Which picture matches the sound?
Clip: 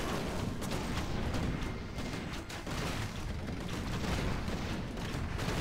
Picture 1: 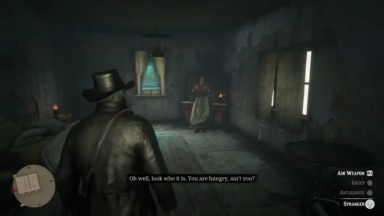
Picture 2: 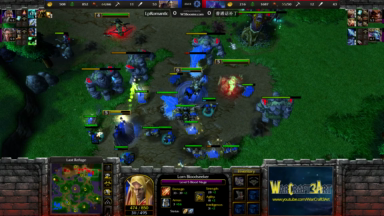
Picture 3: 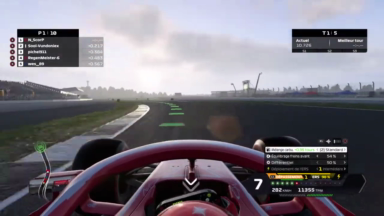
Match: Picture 2